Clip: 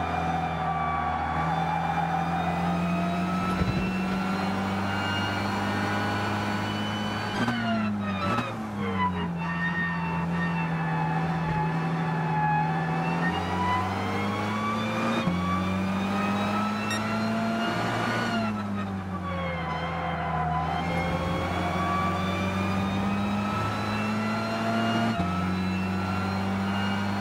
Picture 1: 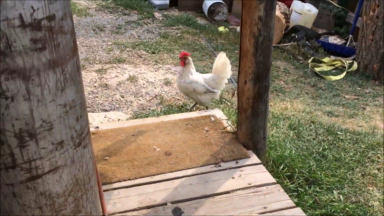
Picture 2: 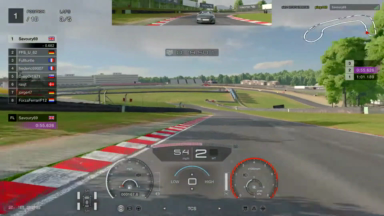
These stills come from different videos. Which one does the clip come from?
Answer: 2